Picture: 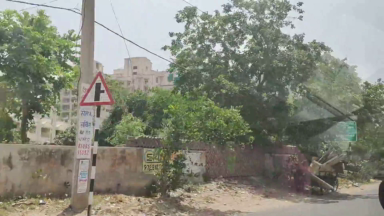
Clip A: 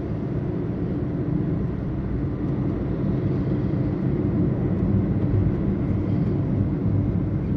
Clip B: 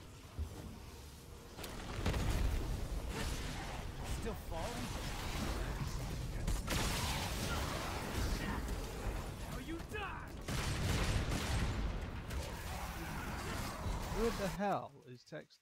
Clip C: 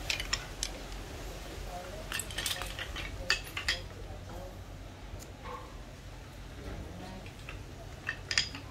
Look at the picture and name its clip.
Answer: A